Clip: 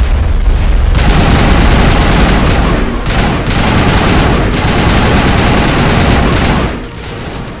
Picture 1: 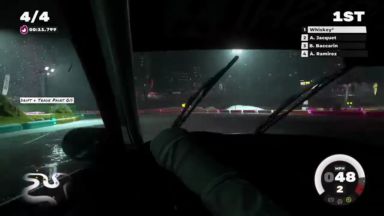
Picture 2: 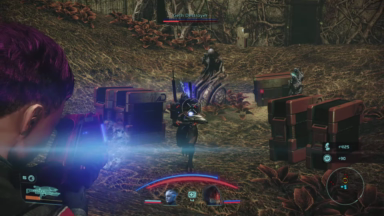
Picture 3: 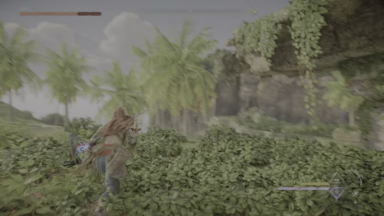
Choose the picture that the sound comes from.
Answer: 2